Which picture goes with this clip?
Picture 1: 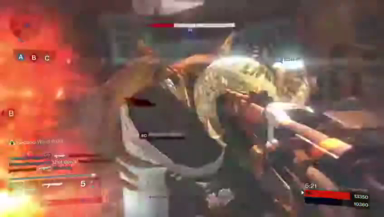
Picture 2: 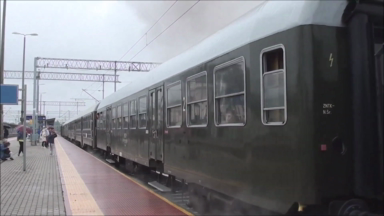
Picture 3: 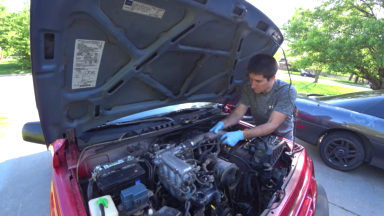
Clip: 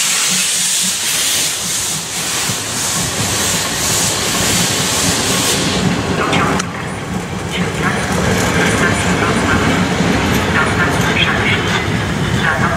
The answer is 2